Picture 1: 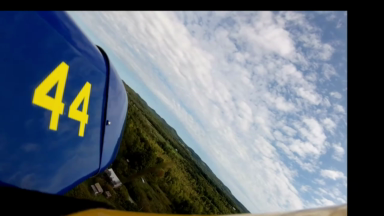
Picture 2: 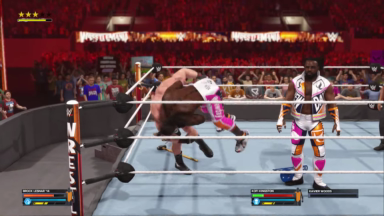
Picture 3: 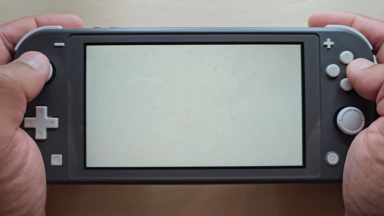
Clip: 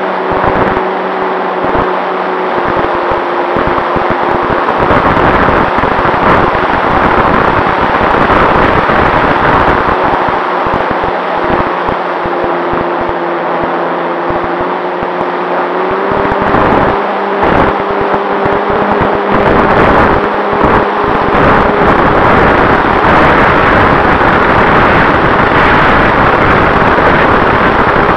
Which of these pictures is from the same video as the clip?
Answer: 1